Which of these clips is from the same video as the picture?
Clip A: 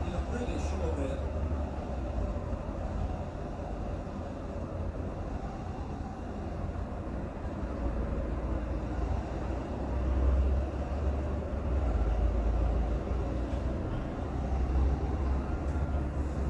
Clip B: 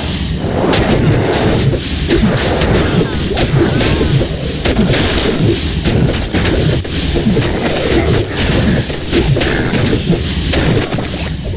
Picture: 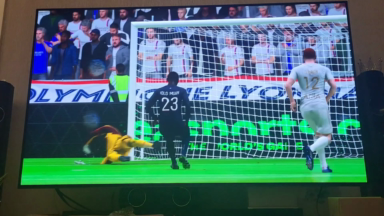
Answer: A